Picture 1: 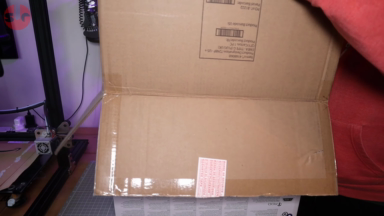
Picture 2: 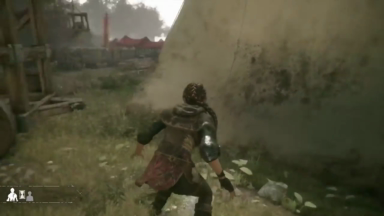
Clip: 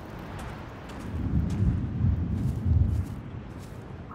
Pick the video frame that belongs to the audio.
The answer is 2